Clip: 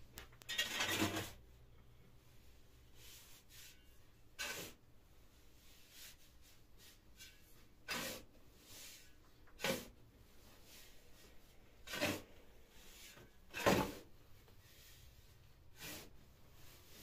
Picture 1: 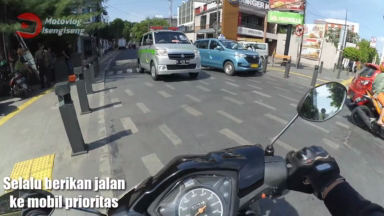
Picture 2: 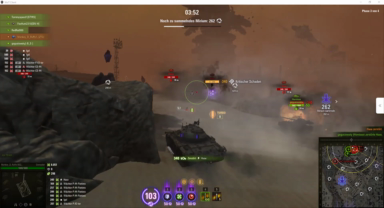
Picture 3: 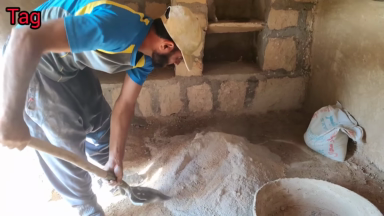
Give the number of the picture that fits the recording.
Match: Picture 3